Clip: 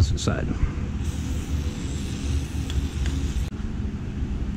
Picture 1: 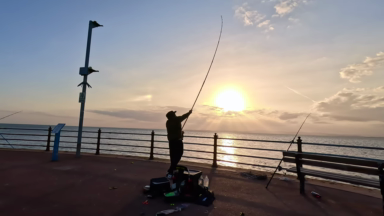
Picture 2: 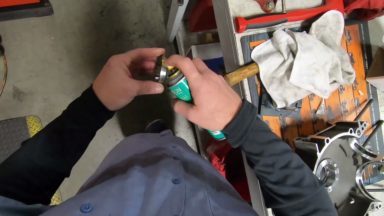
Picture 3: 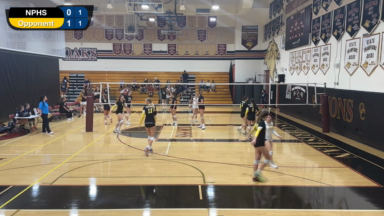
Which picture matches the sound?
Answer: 2